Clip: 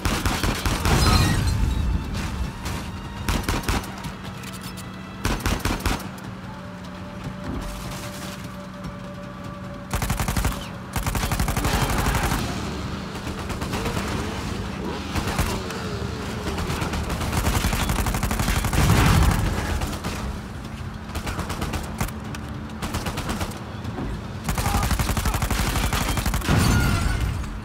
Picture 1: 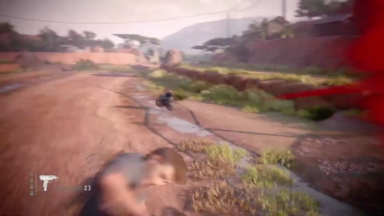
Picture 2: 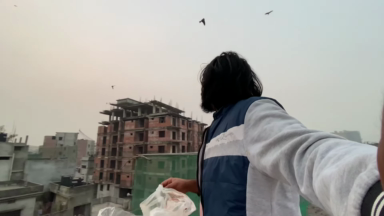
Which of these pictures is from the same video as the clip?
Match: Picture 1